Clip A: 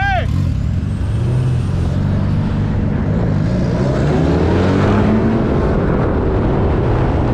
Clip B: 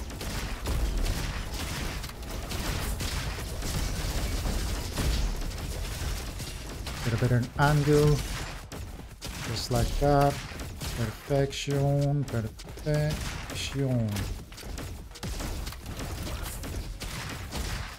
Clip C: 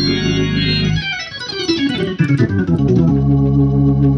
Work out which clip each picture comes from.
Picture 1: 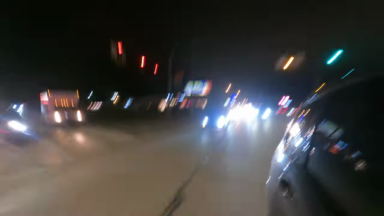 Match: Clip A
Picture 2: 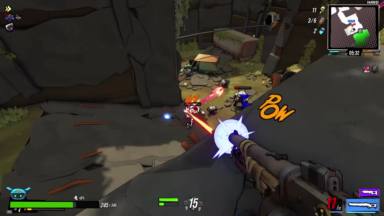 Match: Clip B